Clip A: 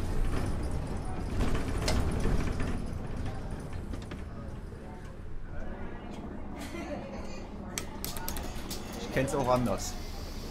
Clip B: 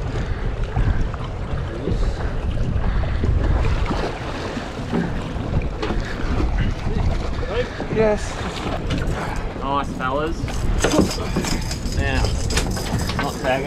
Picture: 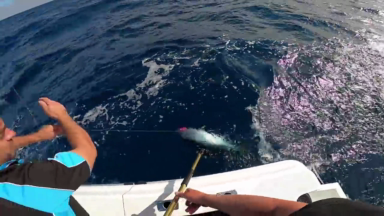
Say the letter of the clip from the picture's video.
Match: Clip B